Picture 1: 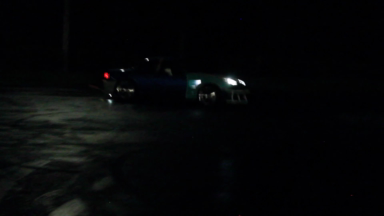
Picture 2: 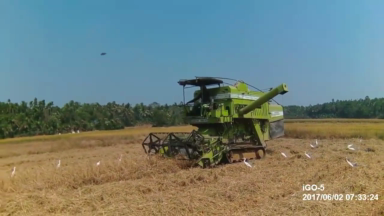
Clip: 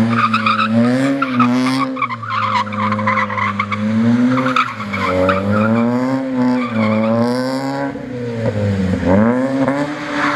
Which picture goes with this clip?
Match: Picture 1